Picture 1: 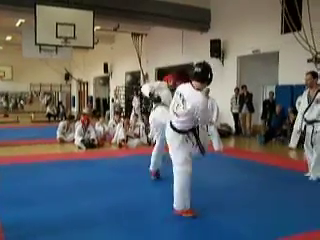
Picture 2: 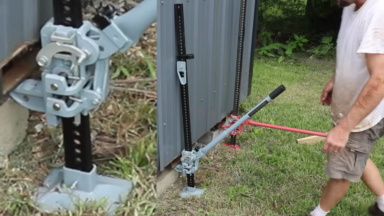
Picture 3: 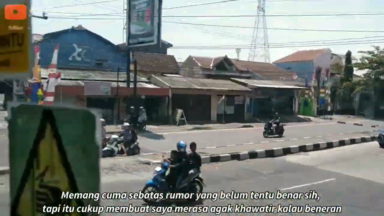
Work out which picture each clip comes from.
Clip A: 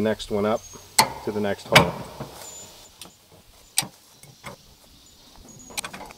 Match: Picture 2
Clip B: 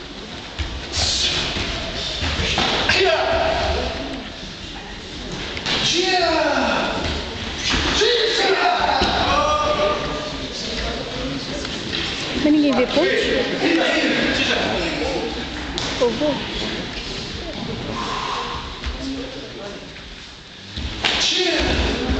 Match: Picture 1